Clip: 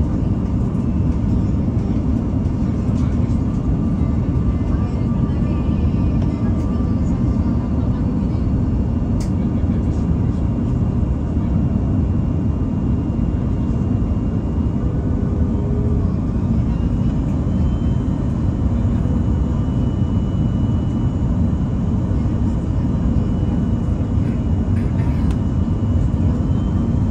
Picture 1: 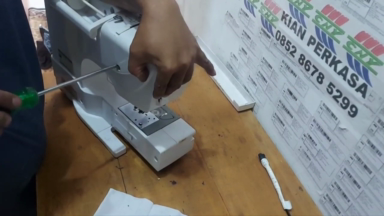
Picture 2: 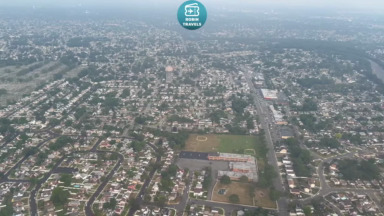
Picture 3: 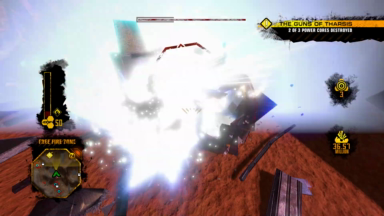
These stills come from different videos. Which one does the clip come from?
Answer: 2